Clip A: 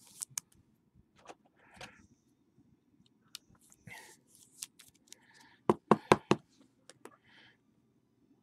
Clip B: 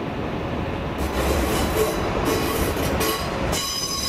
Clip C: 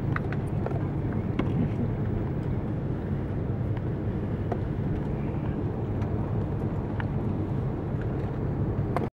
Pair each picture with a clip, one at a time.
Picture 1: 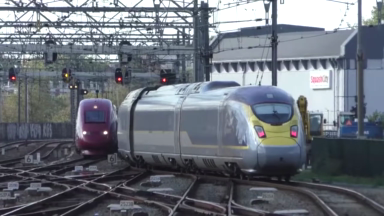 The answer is B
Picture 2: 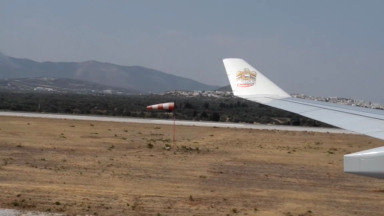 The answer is C